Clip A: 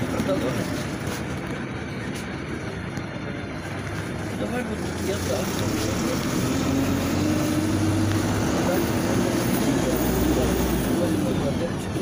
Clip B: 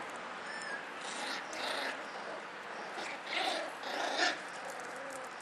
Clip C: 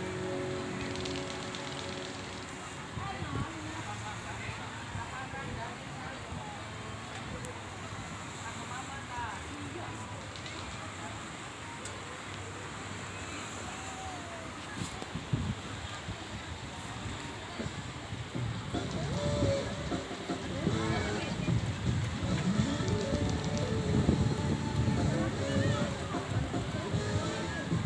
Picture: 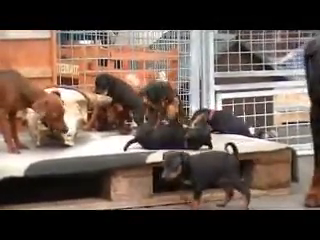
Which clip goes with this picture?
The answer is B